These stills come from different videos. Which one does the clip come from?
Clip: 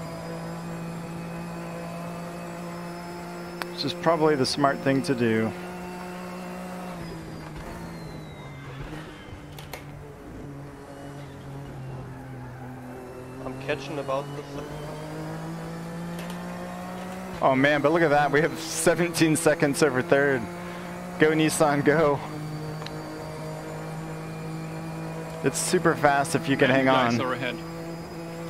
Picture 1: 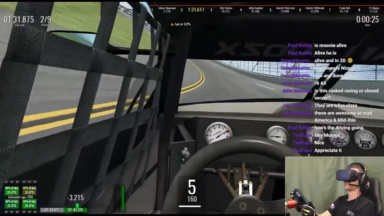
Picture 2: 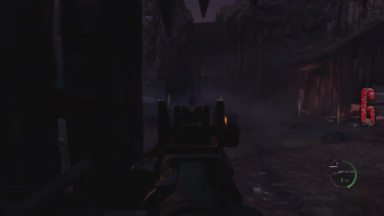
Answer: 1